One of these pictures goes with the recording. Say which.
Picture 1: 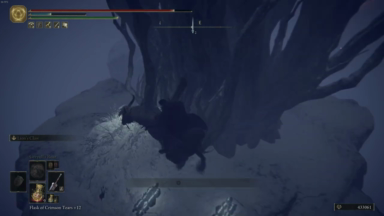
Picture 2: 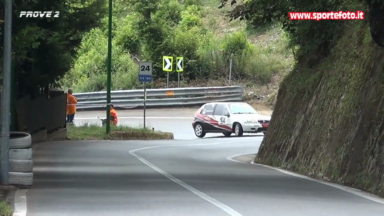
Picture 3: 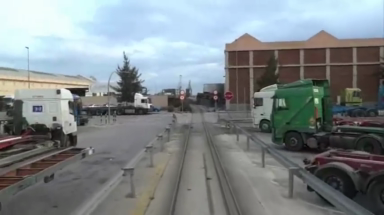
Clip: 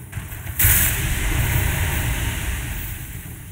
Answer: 1